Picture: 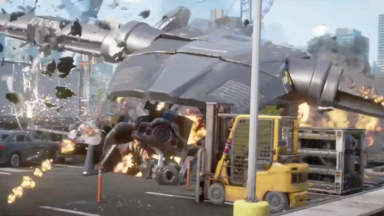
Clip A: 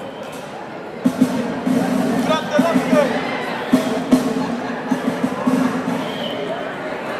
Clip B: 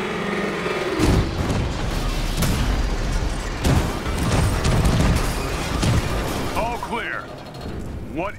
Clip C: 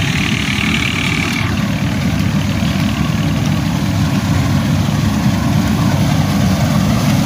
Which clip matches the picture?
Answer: B